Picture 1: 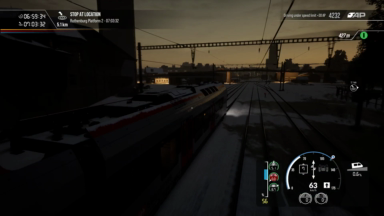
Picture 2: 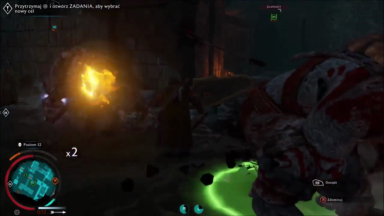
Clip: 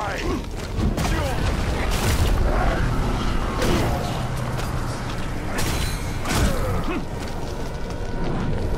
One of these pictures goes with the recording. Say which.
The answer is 2